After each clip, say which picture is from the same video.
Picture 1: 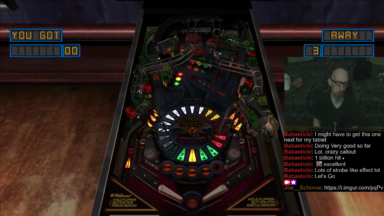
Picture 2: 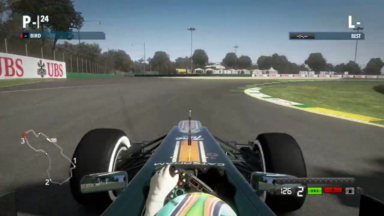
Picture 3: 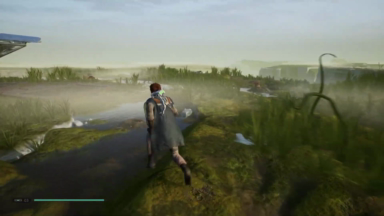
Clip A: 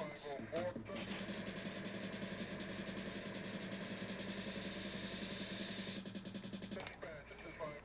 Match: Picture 1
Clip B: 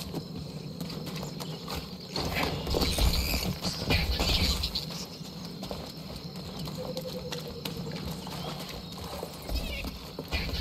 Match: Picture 3